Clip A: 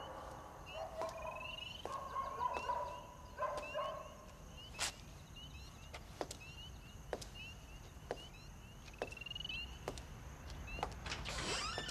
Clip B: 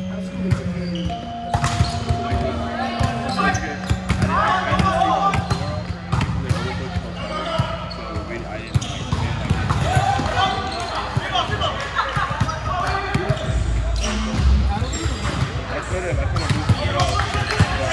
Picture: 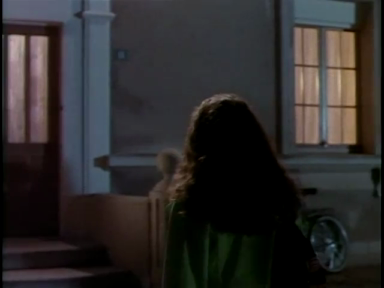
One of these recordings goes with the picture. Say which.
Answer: A